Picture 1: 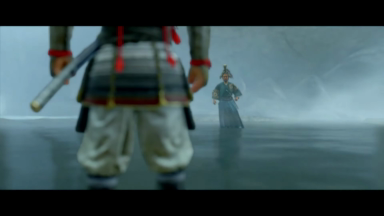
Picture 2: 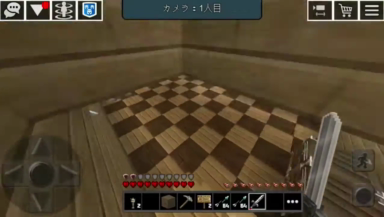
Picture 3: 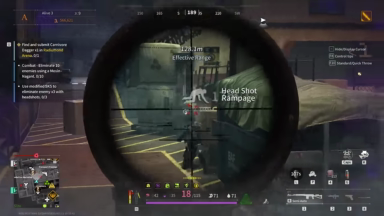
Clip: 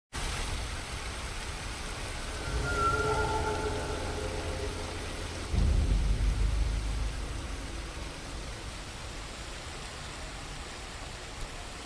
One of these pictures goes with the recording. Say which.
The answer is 1